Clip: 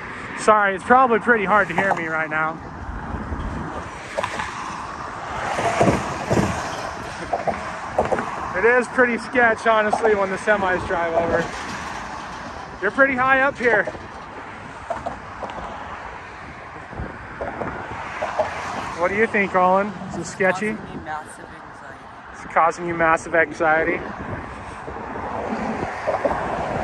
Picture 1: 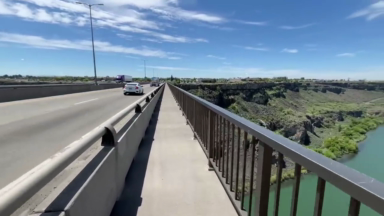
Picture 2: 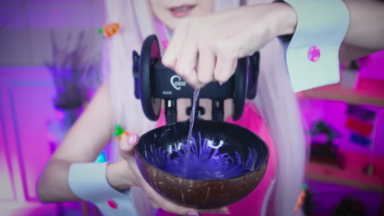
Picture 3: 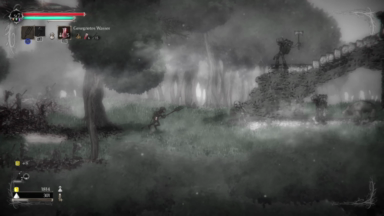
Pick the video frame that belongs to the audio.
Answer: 1